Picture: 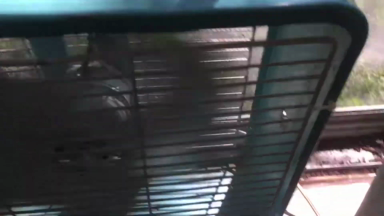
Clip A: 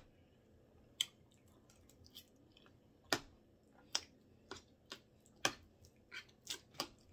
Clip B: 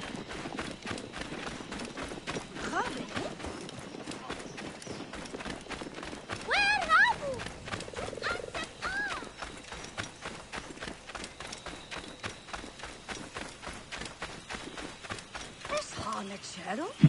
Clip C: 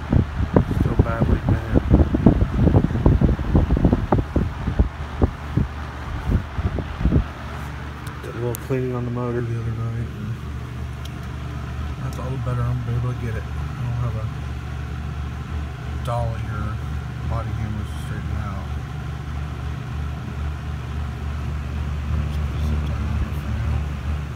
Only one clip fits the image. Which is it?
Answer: C